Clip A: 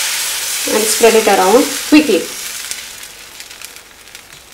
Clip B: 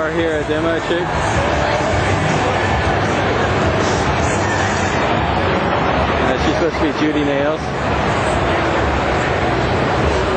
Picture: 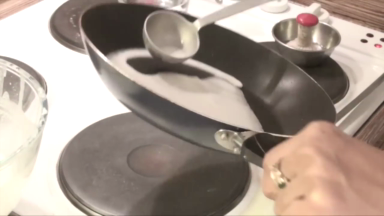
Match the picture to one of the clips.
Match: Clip A